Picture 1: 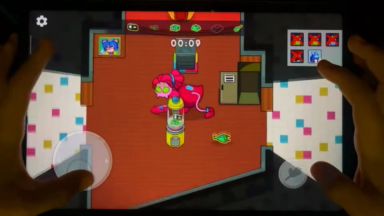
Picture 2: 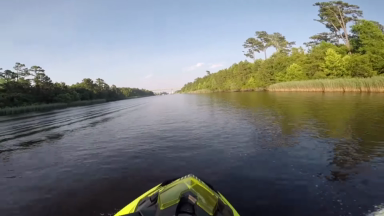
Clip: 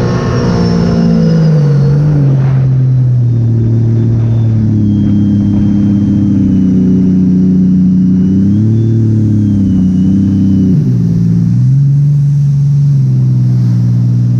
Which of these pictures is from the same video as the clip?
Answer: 2